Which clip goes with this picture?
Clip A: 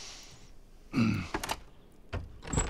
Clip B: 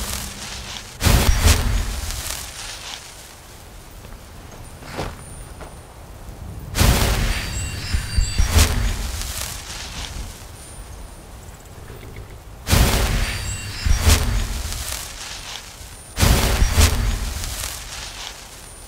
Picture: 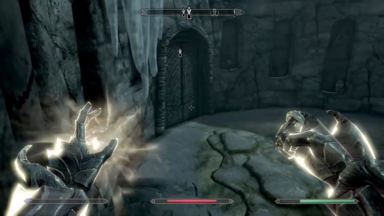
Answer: B